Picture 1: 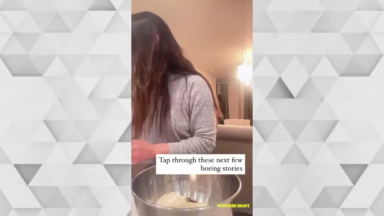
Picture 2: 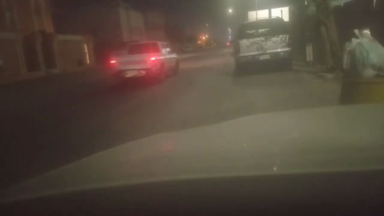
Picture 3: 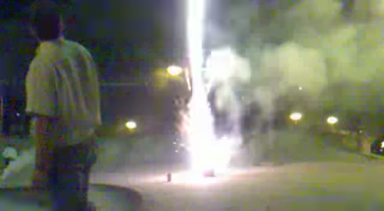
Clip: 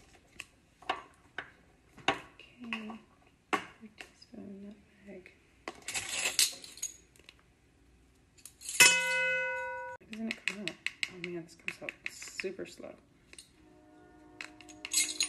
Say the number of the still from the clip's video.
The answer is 1